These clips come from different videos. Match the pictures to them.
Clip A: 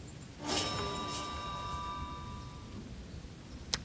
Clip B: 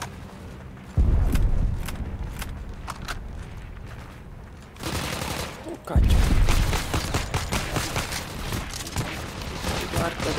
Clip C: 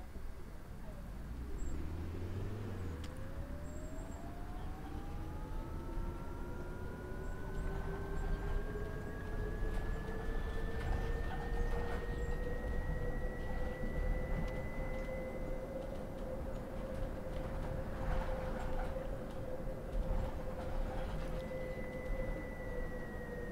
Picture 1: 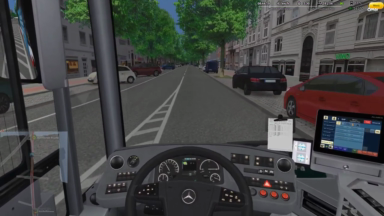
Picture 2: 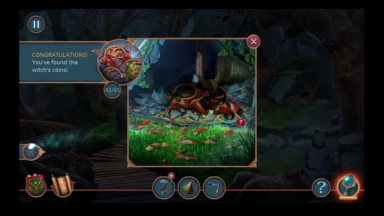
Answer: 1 C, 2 A